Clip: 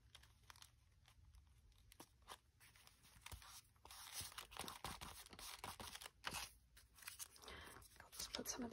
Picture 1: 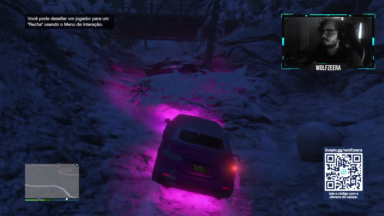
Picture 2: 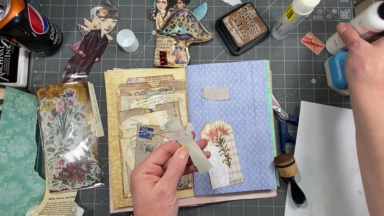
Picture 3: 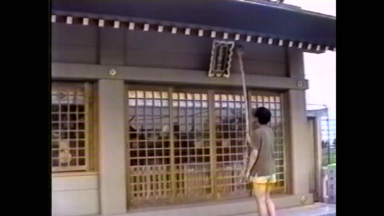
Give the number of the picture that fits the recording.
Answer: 2